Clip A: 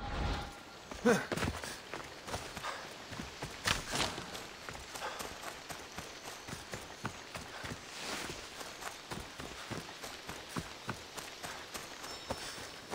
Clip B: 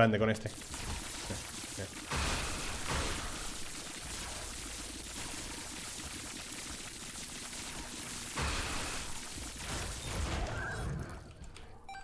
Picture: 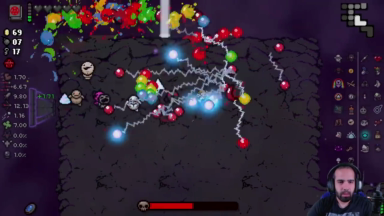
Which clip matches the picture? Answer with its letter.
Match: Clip B